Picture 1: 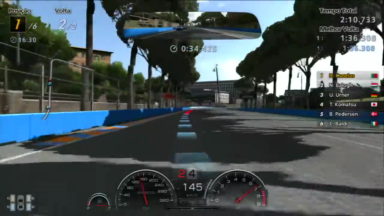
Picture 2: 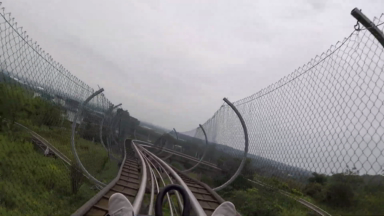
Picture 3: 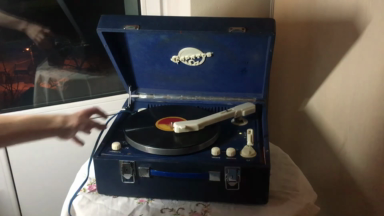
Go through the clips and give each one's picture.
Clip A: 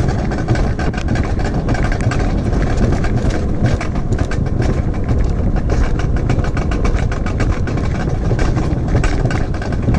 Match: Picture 2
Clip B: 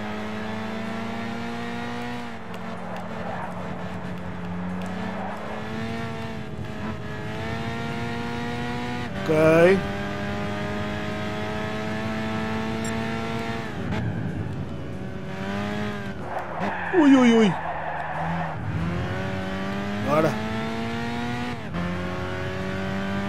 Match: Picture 1